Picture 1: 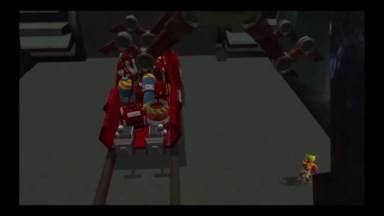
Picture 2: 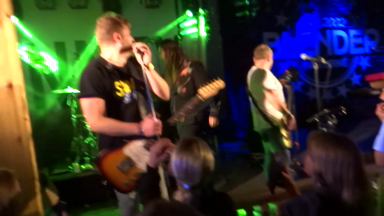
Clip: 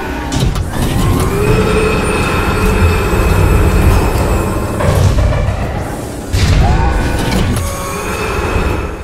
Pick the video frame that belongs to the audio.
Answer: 1